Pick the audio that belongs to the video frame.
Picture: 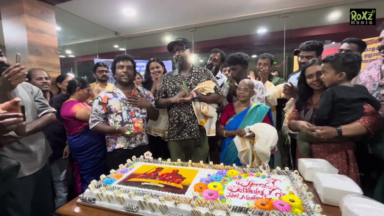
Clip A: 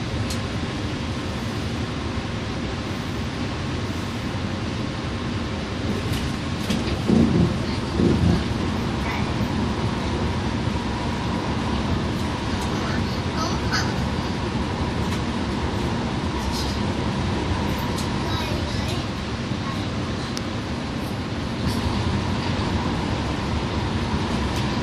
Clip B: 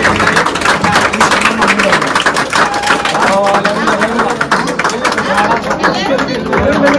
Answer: B